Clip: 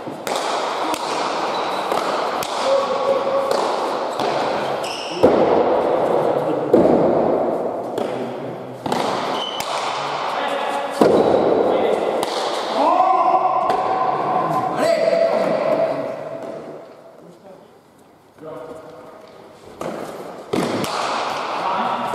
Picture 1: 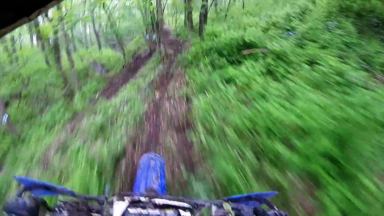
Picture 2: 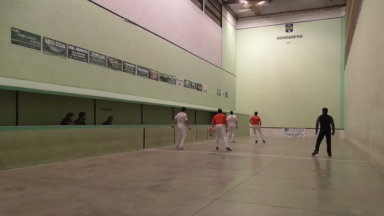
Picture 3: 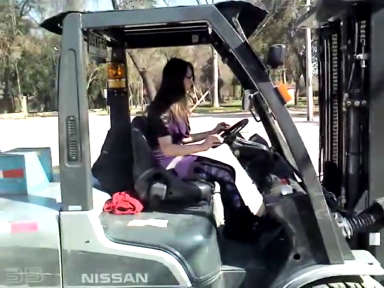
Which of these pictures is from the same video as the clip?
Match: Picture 2